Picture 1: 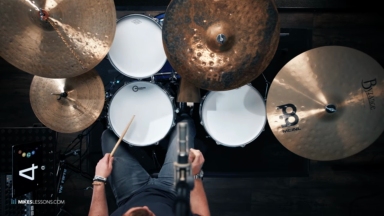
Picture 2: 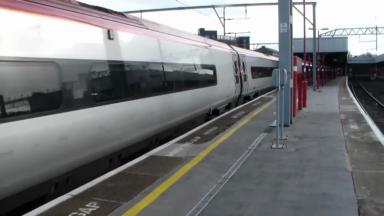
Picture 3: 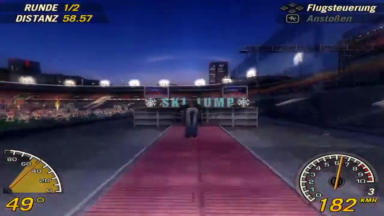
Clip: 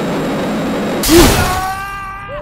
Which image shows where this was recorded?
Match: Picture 3